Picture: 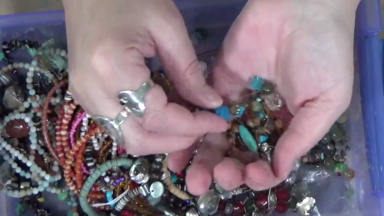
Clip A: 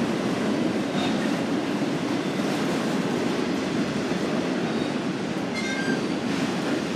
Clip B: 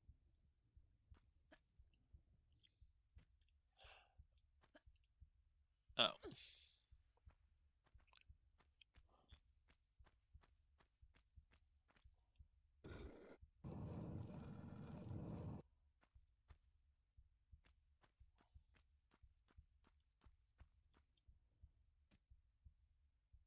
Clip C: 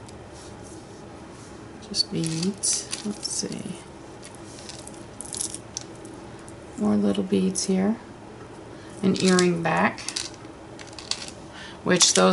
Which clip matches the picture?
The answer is C